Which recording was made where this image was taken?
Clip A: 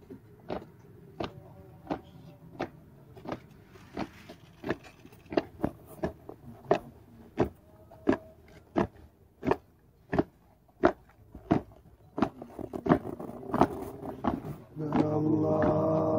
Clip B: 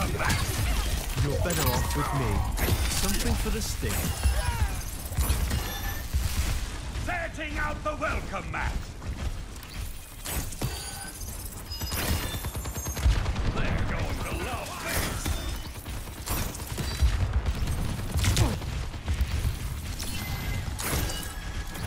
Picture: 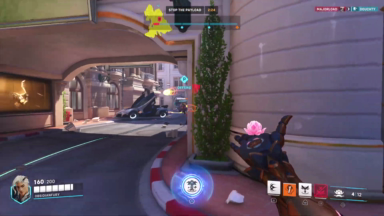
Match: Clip B